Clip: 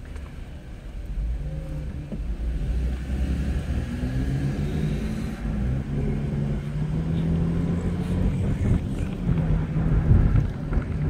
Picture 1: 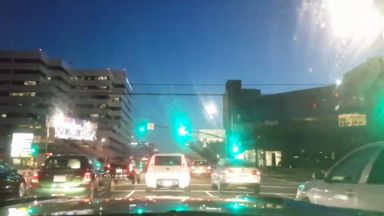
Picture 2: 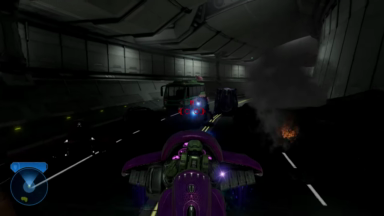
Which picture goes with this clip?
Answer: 1